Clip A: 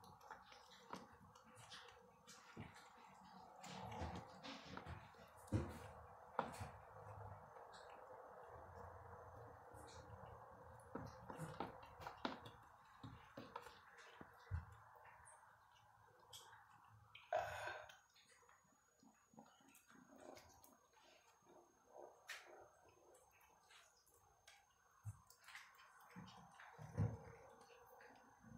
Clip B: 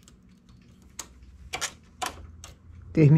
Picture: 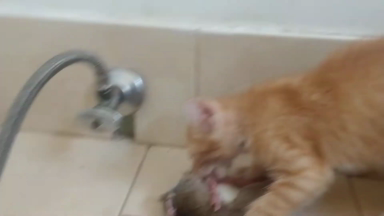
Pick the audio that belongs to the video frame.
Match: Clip A